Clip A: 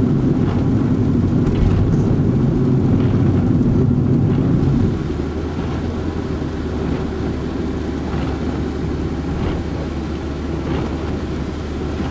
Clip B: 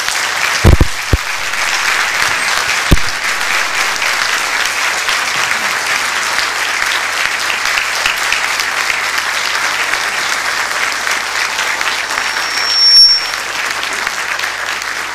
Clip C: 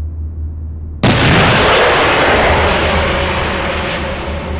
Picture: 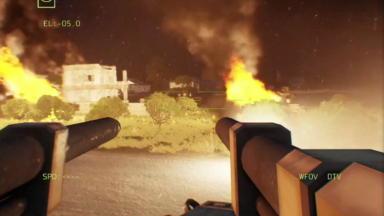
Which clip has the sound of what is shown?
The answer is C